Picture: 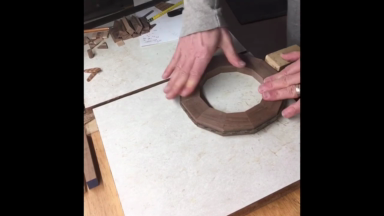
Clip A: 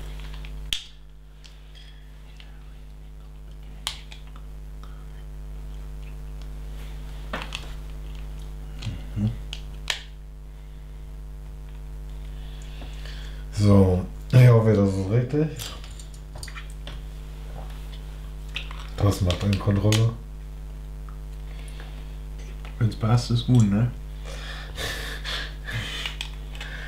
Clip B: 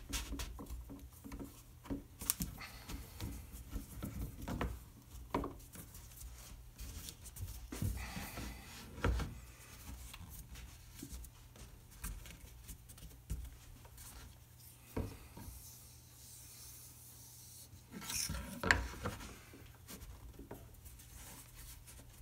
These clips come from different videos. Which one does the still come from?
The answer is B